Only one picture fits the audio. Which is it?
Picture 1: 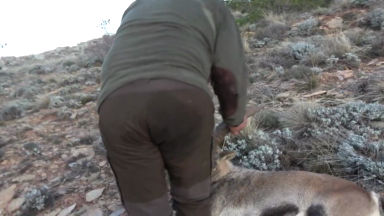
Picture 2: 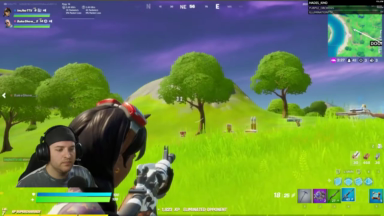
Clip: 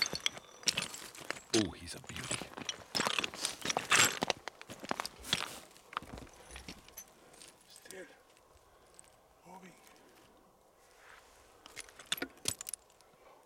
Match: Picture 1